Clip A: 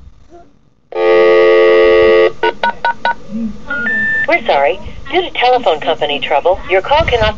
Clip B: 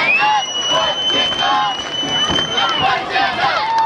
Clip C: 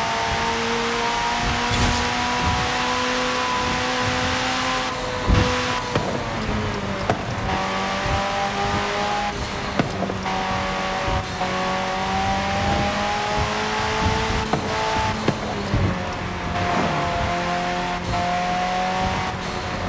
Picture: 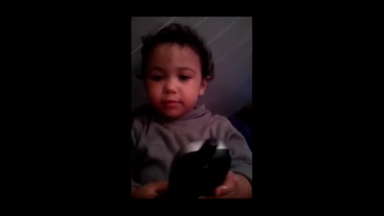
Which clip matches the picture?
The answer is A